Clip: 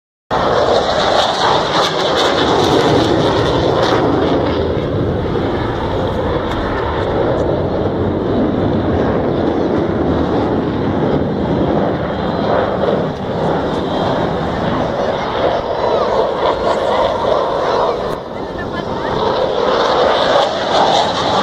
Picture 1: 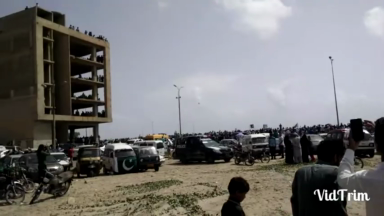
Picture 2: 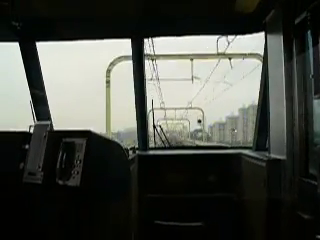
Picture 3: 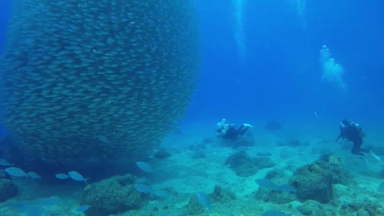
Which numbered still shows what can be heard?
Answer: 1